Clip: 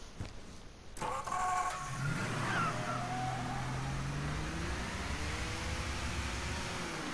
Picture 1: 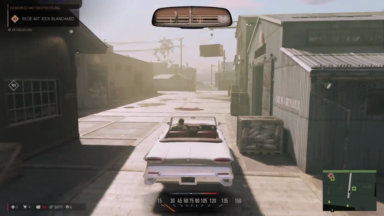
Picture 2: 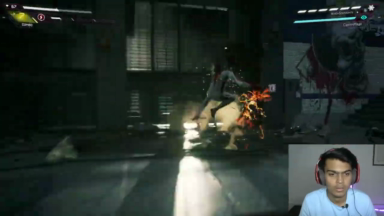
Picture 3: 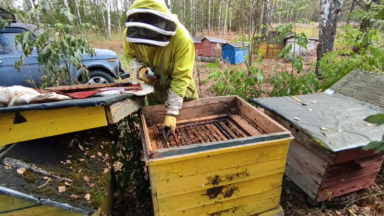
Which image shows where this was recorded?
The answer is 1